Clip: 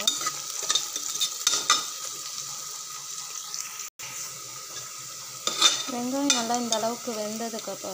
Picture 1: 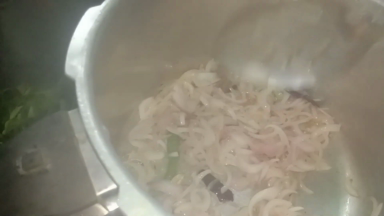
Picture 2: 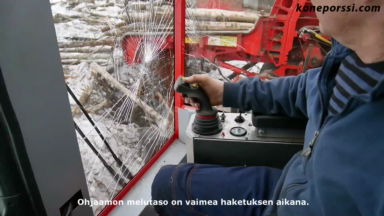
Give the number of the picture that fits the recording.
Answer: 1